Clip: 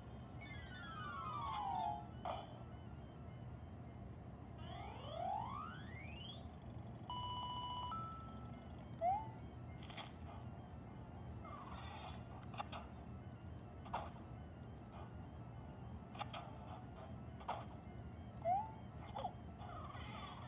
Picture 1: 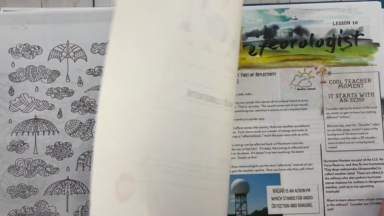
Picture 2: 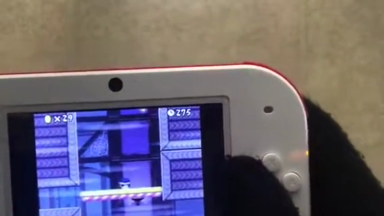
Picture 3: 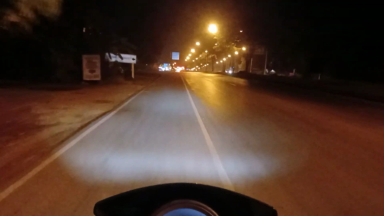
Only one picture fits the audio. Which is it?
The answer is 2